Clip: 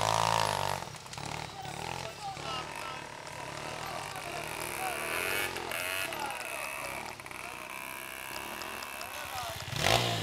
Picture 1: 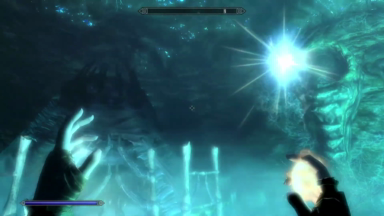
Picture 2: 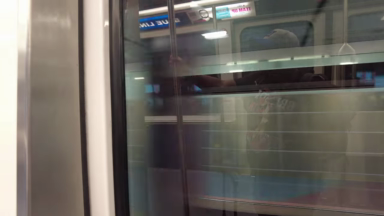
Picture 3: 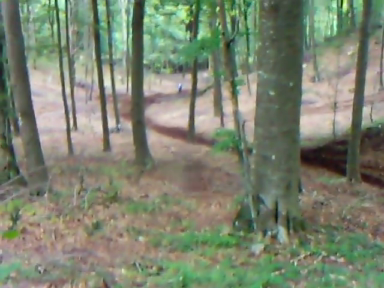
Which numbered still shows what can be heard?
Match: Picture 3